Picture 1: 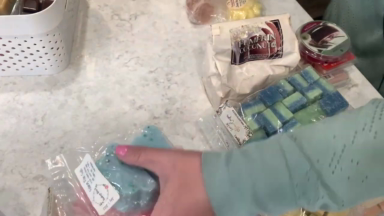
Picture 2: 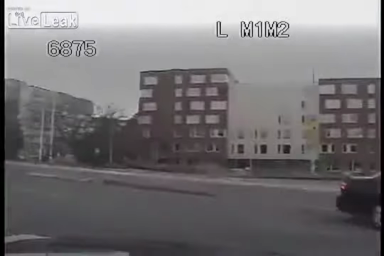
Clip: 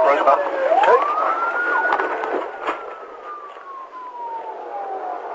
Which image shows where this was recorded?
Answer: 2